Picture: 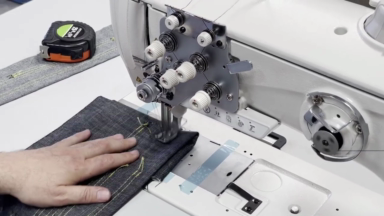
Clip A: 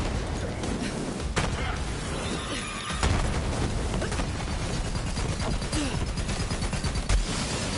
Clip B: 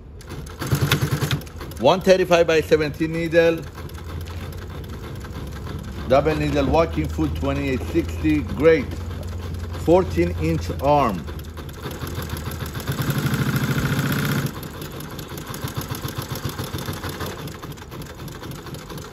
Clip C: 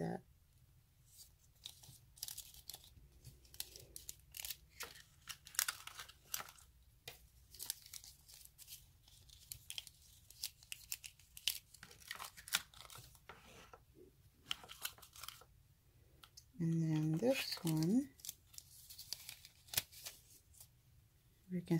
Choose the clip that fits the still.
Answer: B